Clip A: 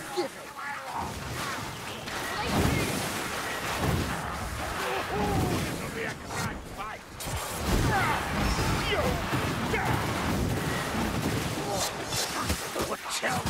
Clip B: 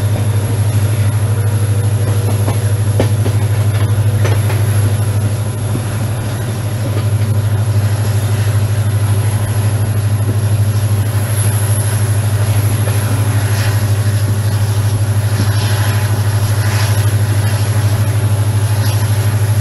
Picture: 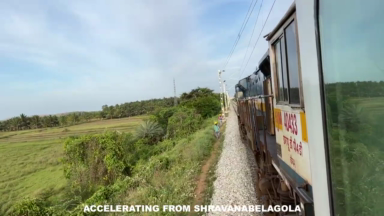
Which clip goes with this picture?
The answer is B